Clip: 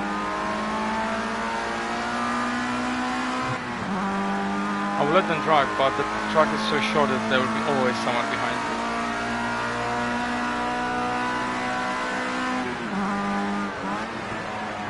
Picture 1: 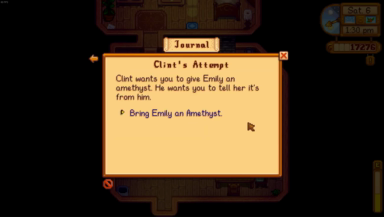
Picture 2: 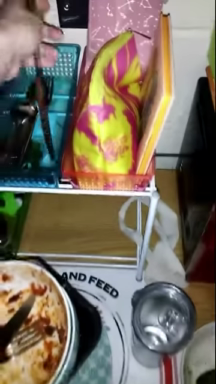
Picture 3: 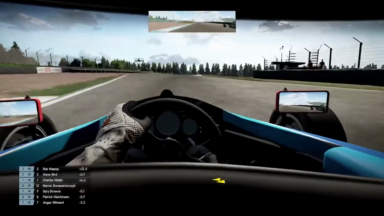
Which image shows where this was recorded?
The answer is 3